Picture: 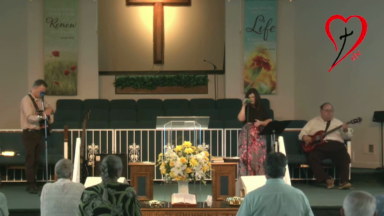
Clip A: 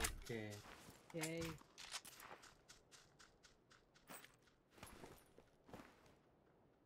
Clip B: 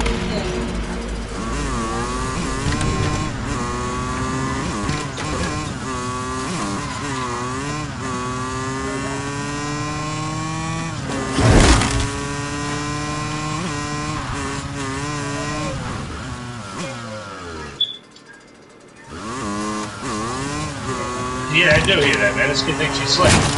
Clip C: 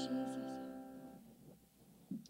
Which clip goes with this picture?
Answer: C